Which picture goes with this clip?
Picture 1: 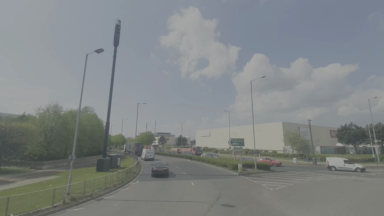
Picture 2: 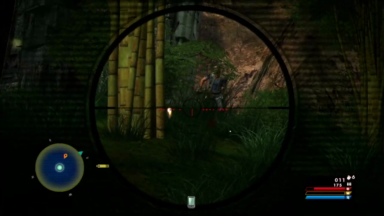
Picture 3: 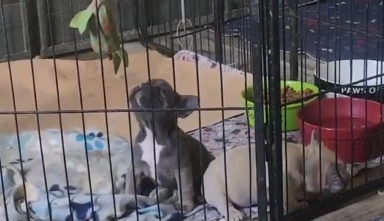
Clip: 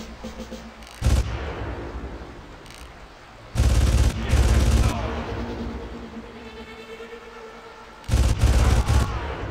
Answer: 2